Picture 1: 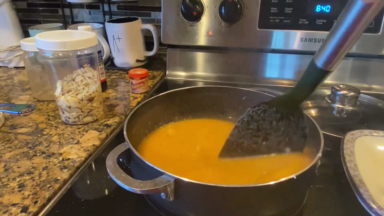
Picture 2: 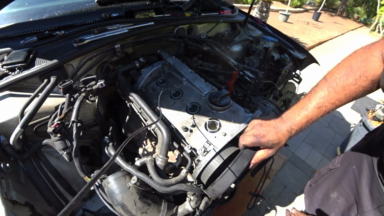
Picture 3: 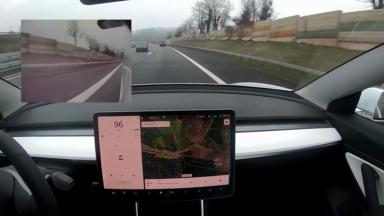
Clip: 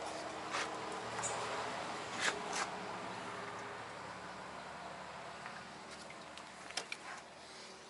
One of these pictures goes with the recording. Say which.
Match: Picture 2